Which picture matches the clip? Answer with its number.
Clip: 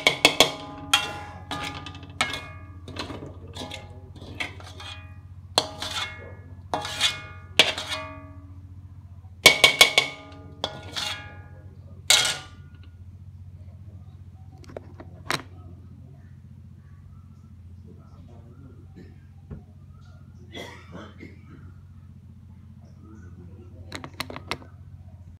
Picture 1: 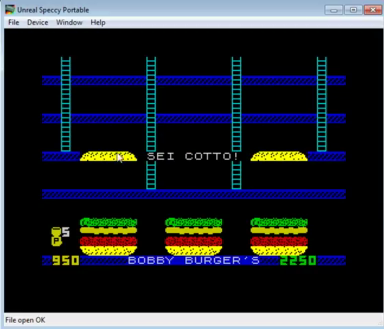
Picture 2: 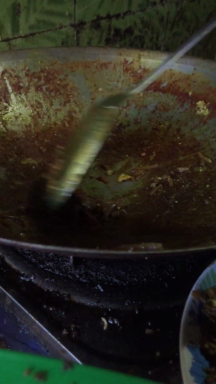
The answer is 2